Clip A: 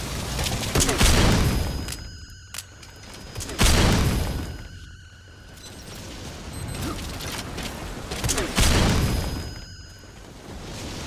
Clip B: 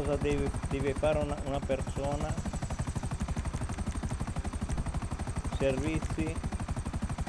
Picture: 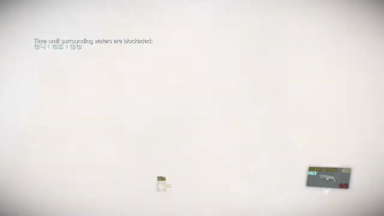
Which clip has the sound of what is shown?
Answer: A